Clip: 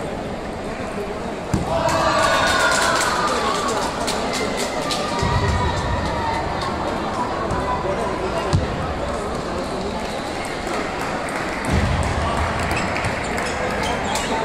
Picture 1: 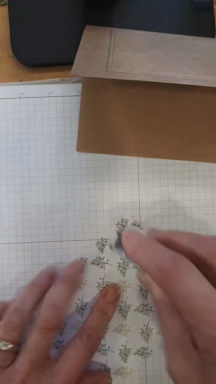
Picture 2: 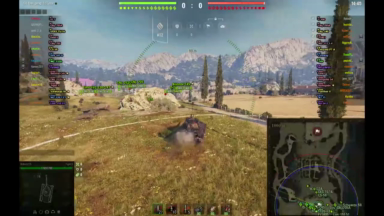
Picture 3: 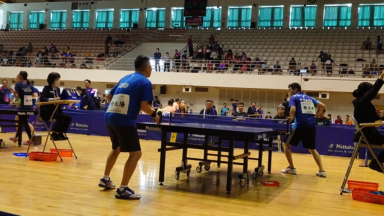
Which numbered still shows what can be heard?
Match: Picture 3